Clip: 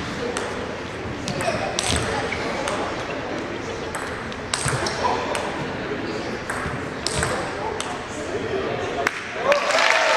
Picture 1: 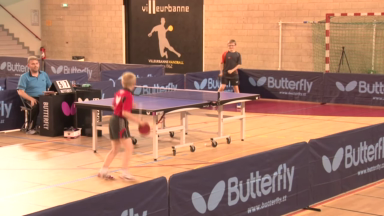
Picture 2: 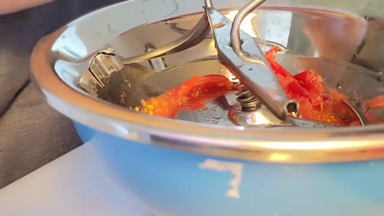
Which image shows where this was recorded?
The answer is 1